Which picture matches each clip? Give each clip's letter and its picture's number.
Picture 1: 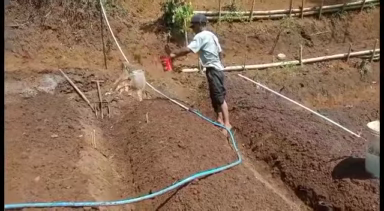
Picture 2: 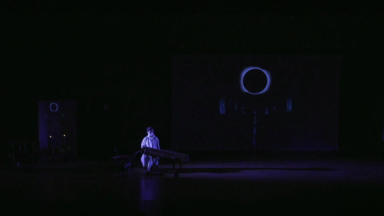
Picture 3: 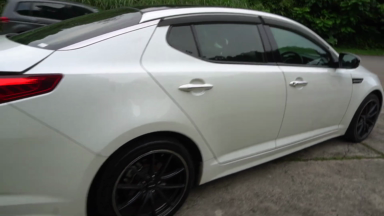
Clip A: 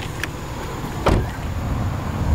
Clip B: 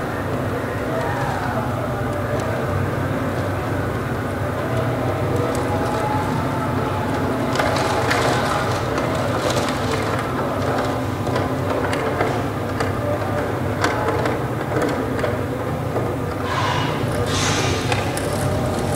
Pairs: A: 3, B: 2